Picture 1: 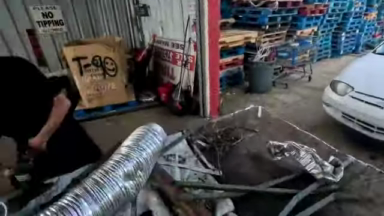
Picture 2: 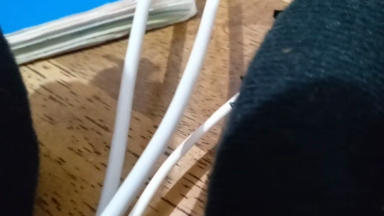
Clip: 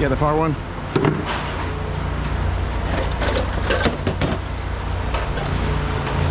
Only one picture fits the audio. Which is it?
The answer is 1